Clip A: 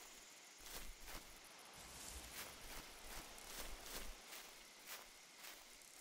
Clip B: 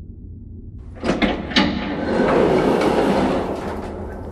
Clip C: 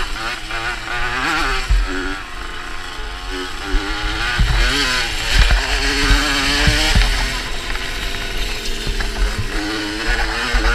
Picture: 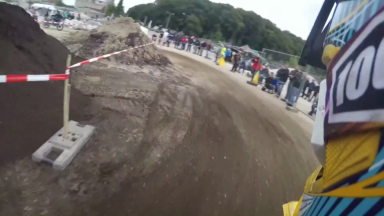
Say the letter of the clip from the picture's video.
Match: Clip C